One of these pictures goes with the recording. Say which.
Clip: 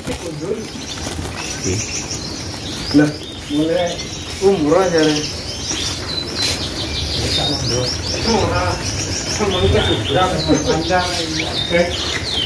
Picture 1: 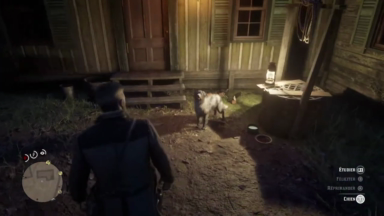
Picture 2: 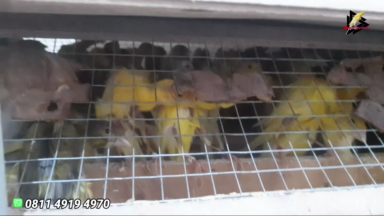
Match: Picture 2